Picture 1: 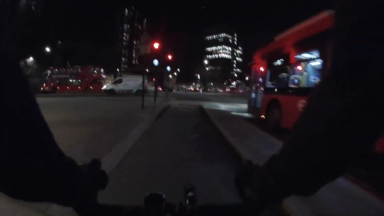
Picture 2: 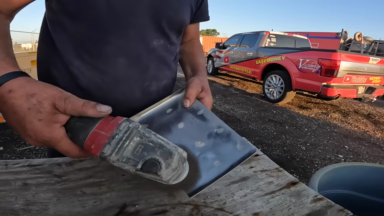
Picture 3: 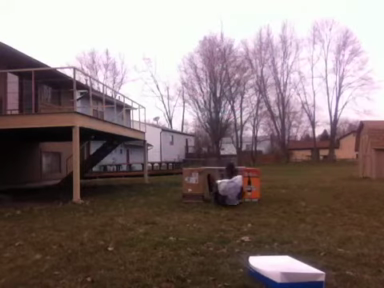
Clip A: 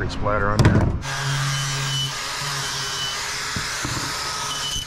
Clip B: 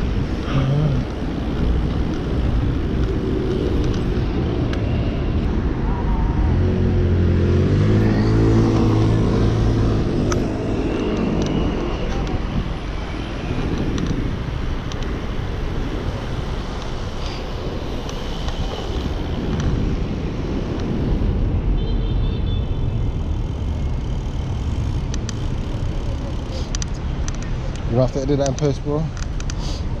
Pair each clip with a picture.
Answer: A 2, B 1